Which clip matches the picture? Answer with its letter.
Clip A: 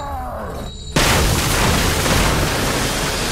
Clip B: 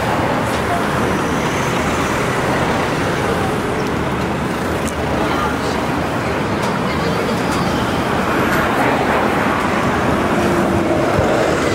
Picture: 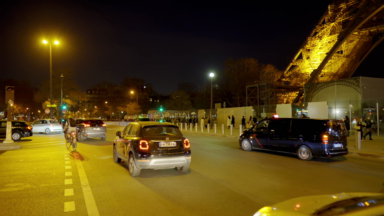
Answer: B